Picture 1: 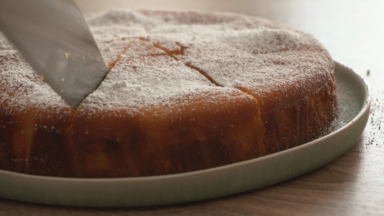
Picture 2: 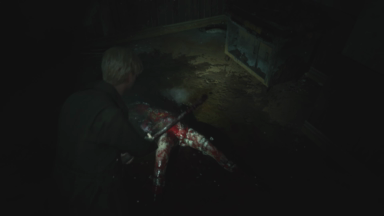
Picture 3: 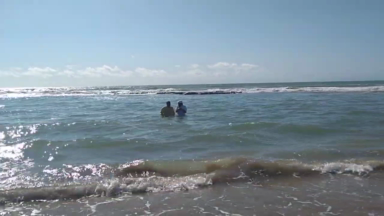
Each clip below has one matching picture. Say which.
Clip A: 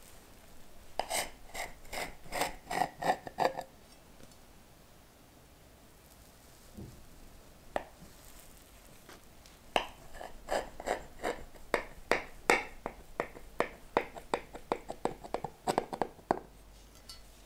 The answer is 1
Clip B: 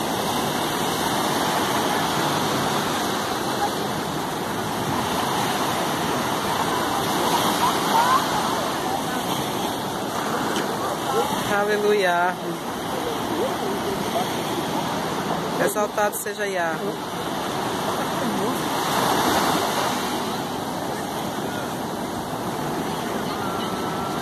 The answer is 3